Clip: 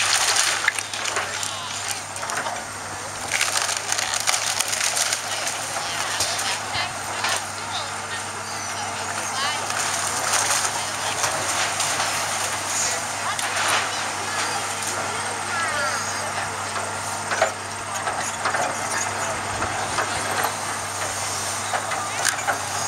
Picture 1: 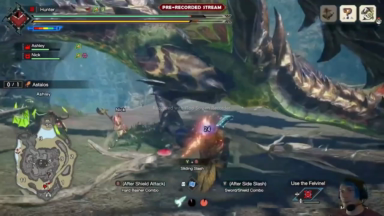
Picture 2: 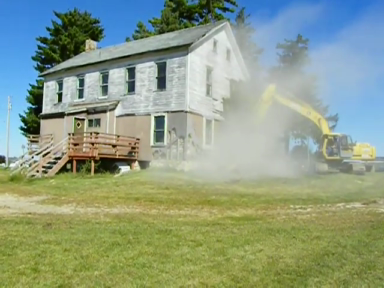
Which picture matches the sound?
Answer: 2